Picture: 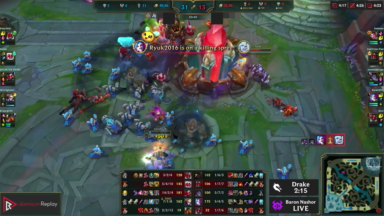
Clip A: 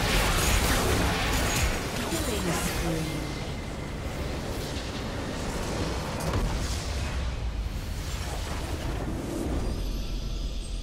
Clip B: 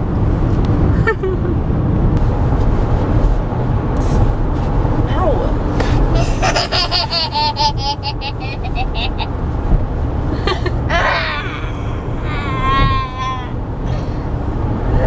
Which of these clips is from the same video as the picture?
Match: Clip A